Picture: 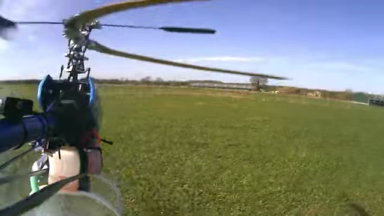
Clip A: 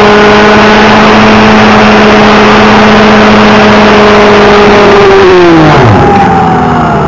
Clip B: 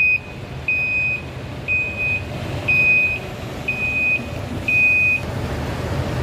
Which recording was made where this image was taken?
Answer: A